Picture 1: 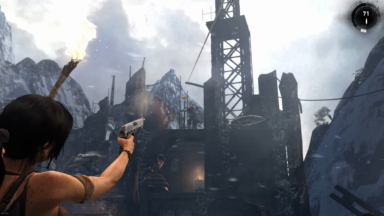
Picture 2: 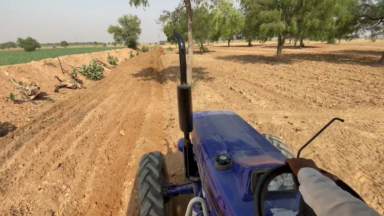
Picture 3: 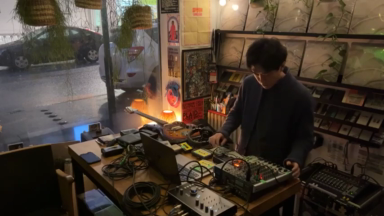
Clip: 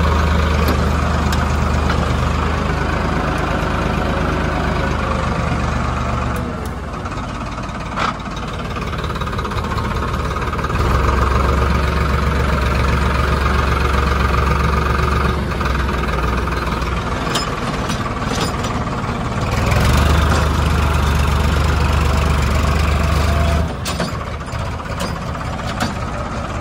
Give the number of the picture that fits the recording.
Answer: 2